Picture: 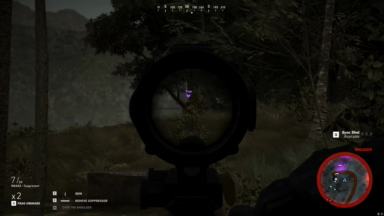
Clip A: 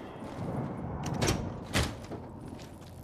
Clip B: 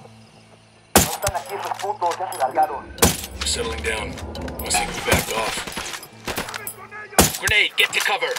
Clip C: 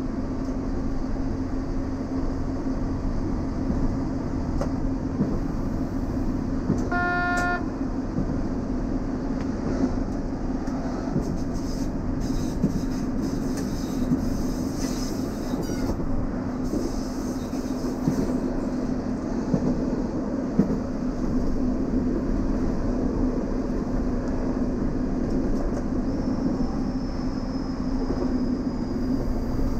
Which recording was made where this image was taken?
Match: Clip B